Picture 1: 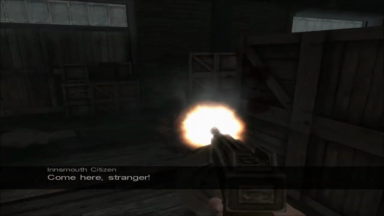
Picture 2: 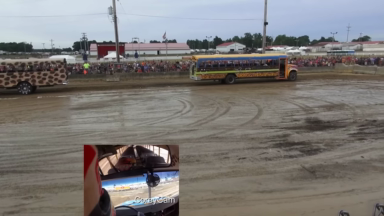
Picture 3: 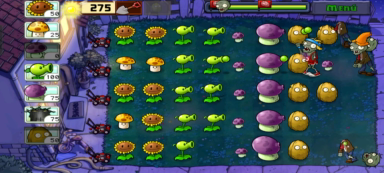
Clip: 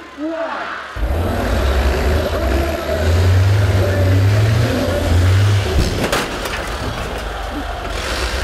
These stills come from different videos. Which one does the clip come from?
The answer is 2